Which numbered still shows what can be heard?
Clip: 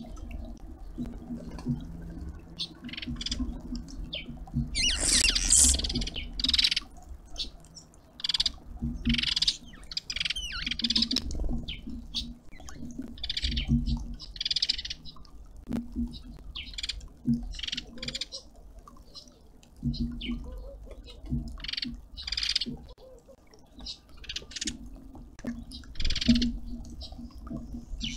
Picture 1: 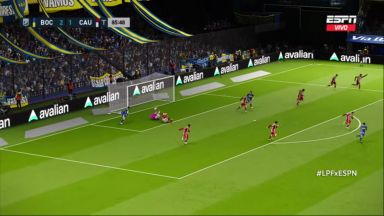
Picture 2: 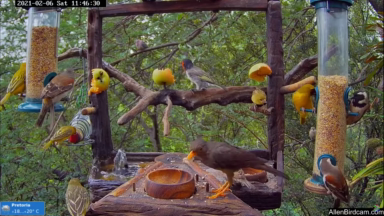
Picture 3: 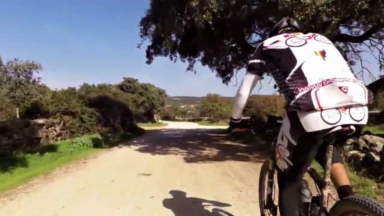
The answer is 2